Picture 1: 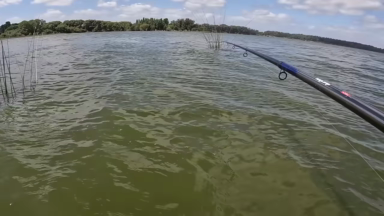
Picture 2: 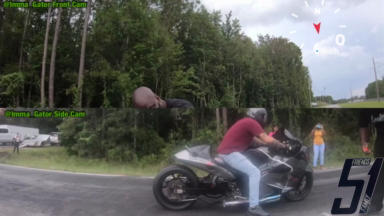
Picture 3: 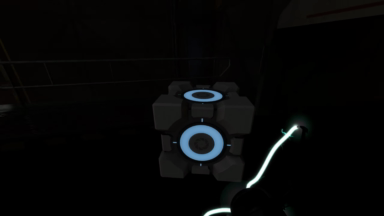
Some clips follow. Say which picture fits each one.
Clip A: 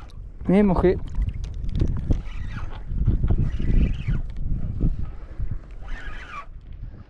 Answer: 1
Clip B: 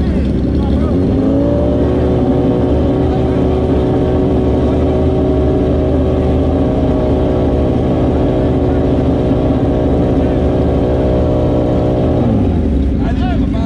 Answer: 2